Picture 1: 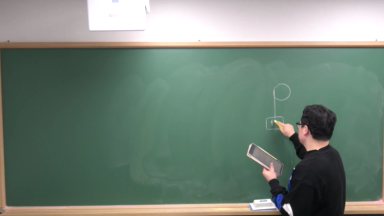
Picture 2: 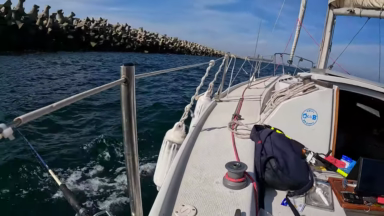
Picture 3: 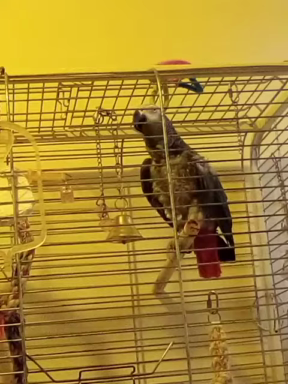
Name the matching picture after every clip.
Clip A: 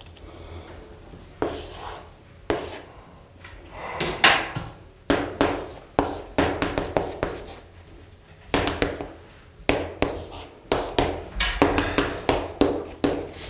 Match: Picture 1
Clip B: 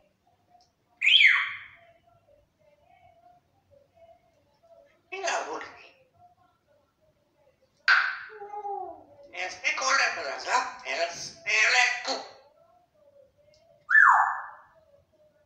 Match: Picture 3